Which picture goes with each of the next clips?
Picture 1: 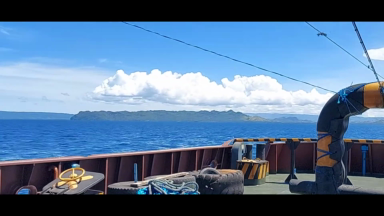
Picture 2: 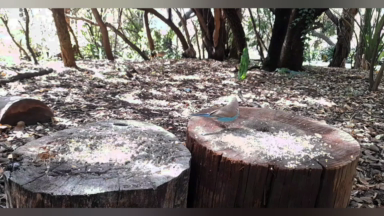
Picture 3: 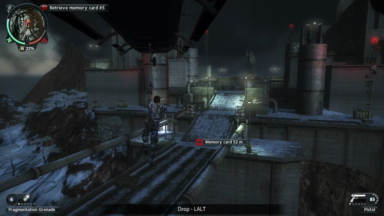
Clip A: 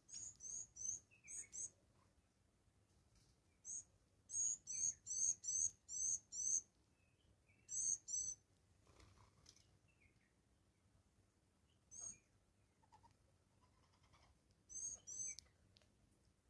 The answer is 2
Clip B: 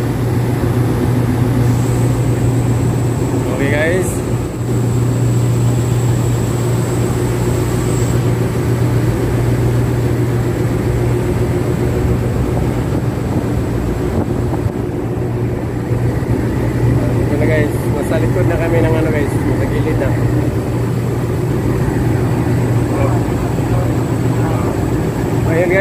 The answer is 1